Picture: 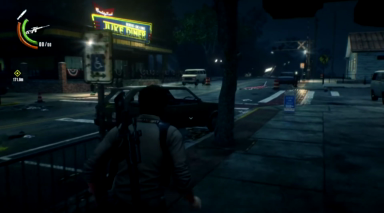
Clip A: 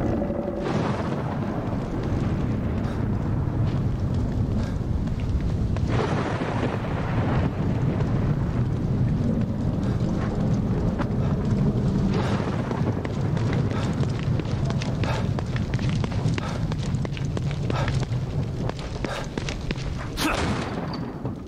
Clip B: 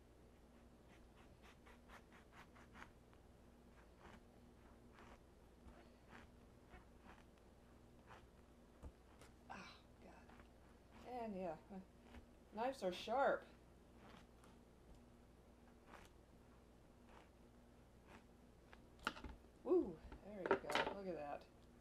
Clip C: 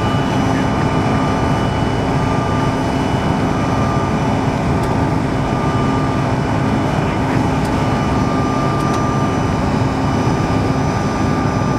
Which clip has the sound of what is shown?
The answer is A